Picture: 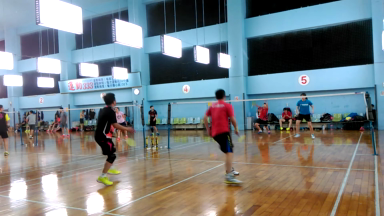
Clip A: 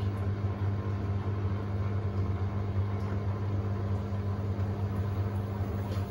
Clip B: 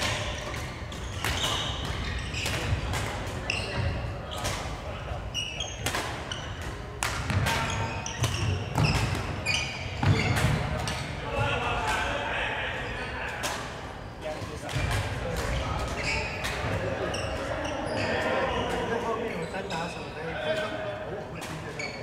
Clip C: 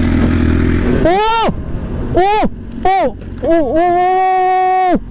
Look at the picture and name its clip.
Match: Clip B